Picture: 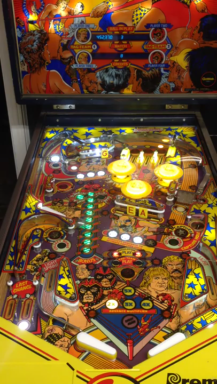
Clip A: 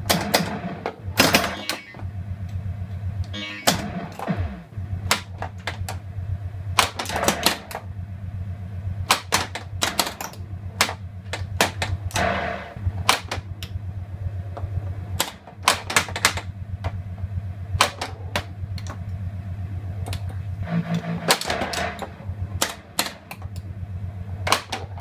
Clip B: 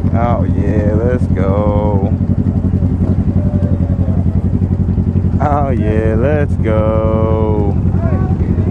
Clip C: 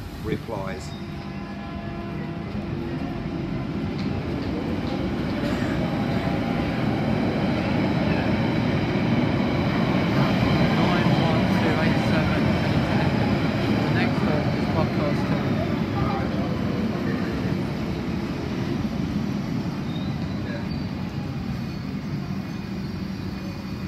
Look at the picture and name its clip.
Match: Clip A